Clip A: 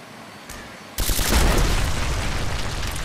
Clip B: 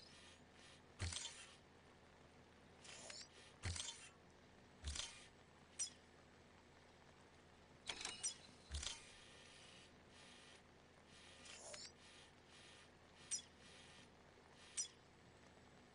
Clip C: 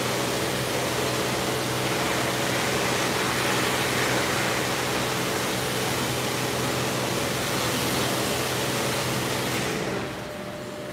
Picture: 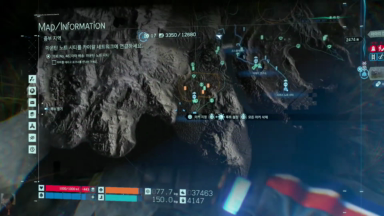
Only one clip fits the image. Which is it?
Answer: B